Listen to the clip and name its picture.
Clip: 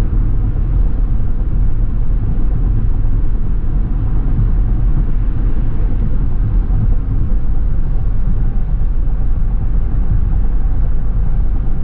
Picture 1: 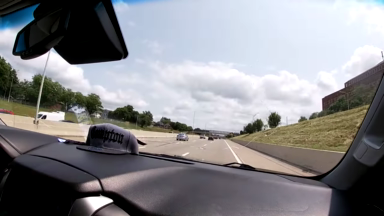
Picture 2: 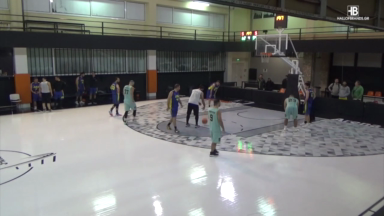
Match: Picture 1